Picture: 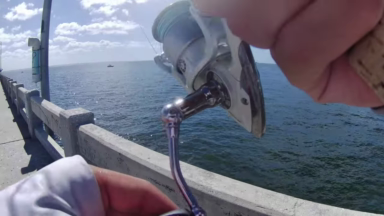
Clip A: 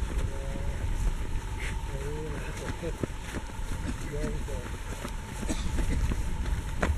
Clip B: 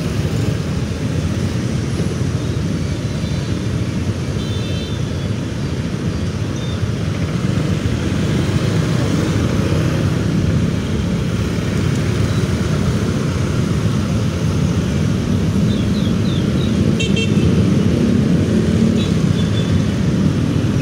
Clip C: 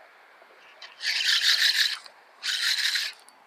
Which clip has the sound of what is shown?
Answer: C